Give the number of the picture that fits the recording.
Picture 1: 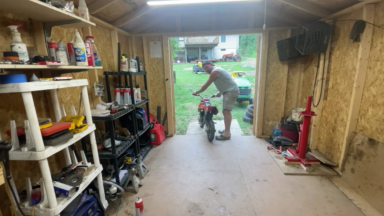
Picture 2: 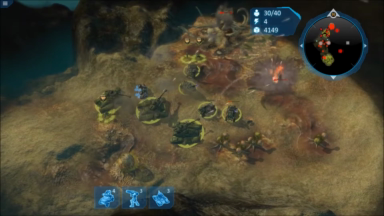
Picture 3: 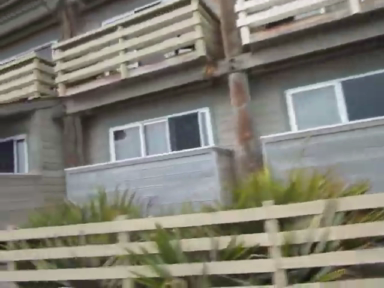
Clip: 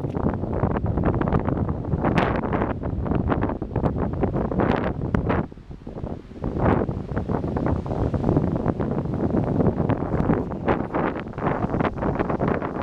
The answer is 3